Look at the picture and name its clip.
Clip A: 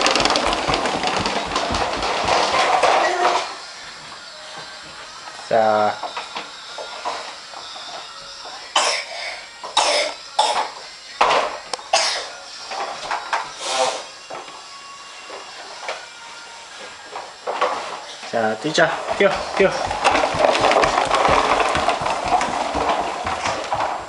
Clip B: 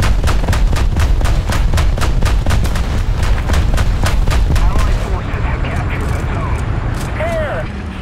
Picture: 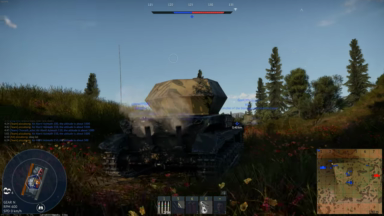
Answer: B